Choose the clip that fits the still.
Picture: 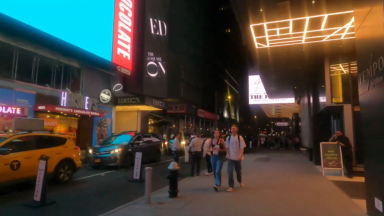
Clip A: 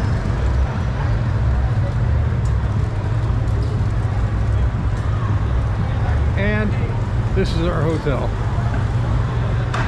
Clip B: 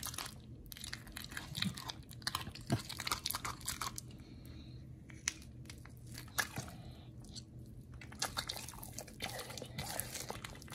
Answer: A